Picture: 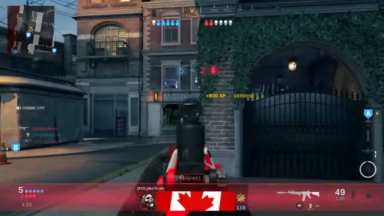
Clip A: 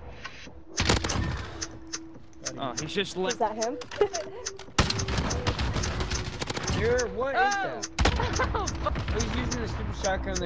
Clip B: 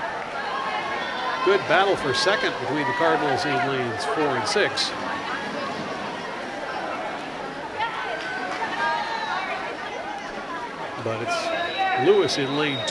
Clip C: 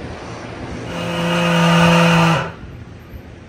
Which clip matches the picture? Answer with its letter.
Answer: A